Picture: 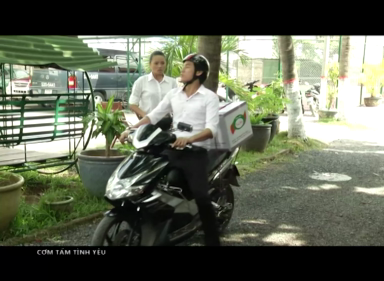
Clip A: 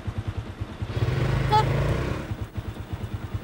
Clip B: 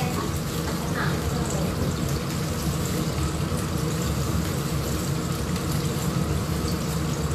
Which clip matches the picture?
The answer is A